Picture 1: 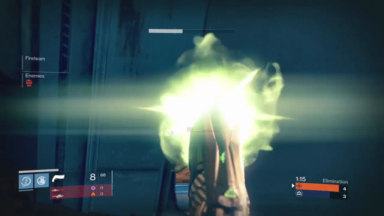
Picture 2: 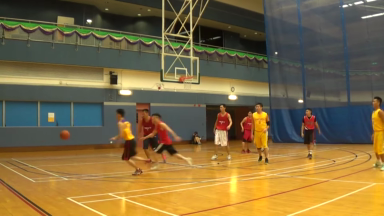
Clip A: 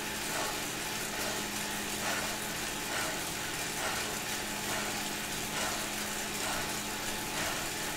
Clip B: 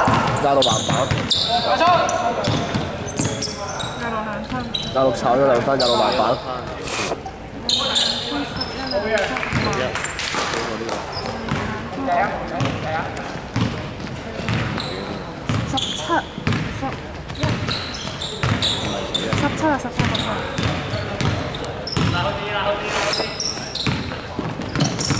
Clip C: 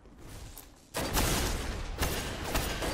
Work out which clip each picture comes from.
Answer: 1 C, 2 B